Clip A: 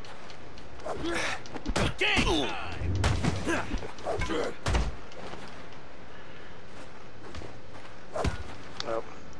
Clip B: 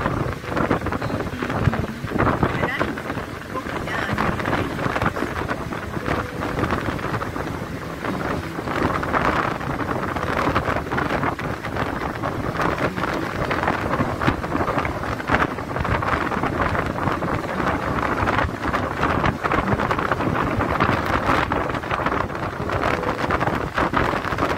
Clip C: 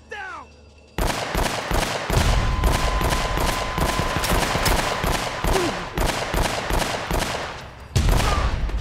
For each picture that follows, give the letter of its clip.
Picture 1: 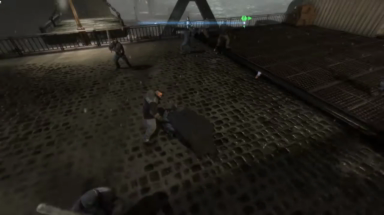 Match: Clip A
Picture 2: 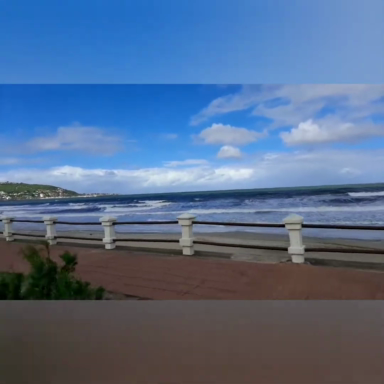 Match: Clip B